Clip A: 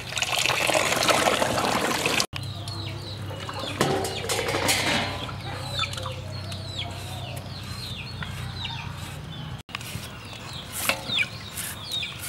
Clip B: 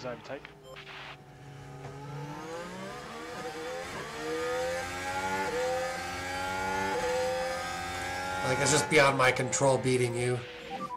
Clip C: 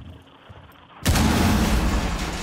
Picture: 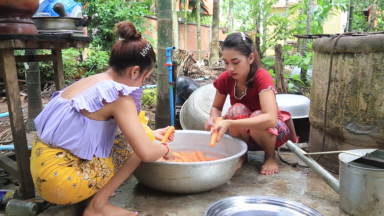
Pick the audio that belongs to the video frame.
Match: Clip A